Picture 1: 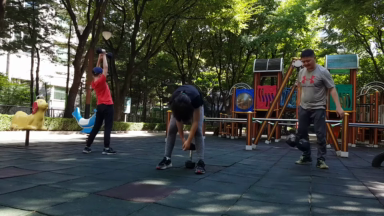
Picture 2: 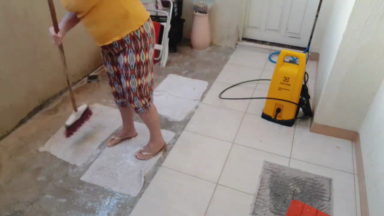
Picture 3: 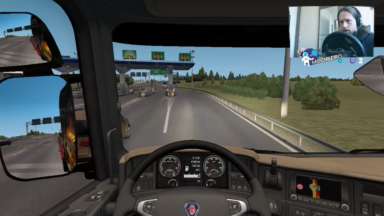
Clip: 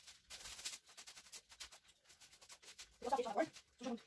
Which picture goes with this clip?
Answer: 2